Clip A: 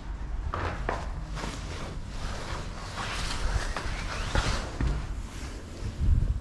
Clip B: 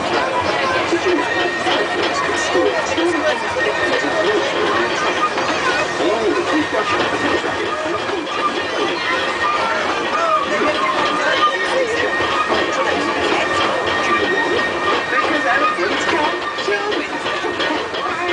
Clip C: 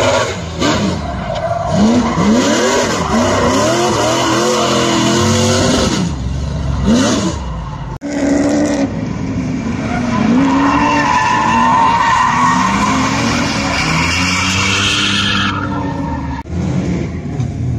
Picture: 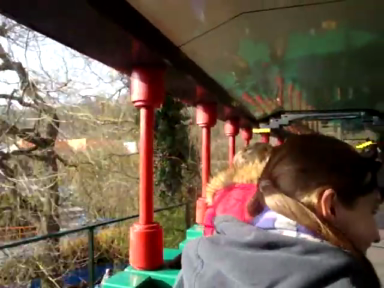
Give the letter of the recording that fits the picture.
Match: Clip B